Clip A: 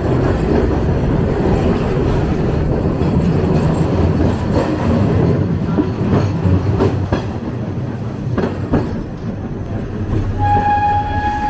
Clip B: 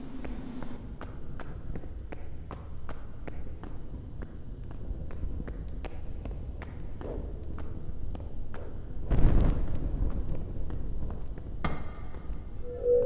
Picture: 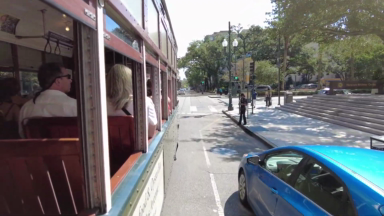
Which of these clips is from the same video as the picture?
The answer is A